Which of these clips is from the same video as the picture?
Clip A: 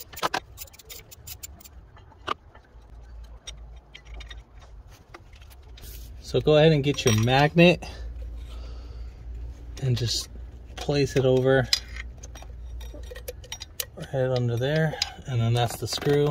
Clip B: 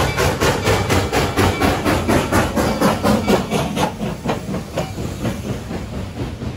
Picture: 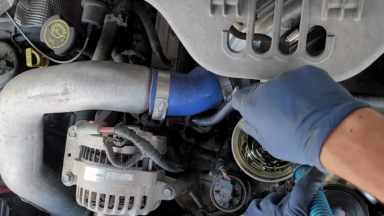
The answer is A